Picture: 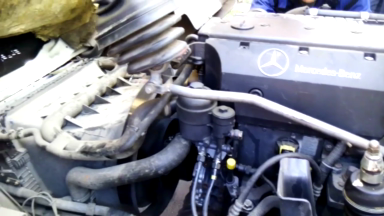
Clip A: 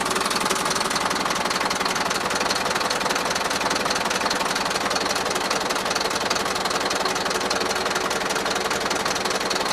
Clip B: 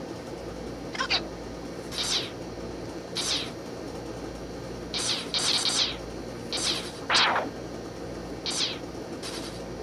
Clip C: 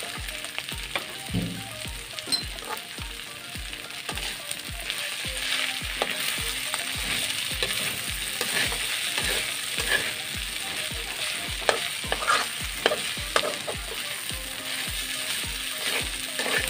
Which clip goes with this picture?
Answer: A